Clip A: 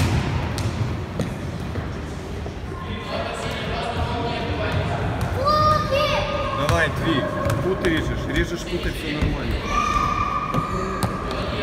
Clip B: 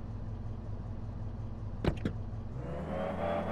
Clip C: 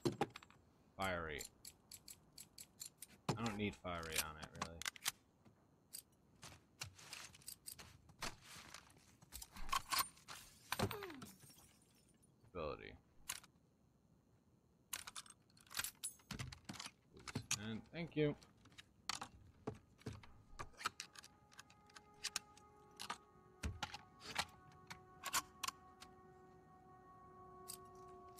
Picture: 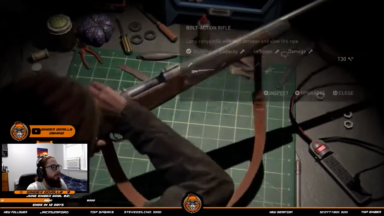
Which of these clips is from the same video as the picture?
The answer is C